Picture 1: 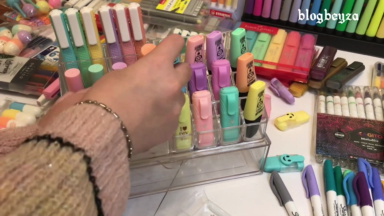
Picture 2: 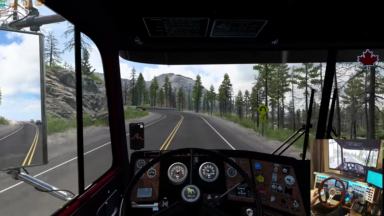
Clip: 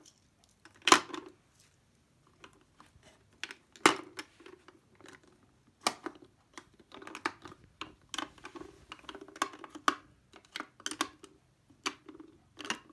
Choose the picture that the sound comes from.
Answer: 1